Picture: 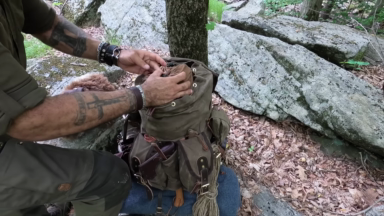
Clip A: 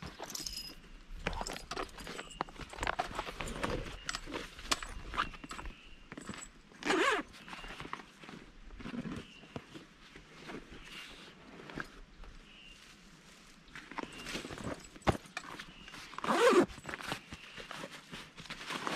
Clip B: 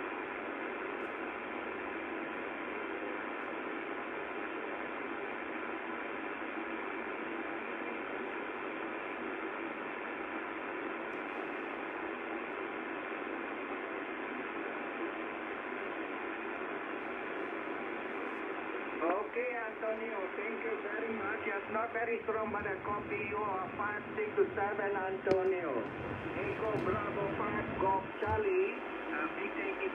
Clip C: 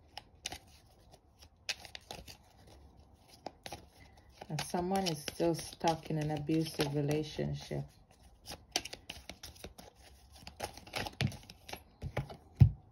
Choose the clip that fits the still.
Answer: A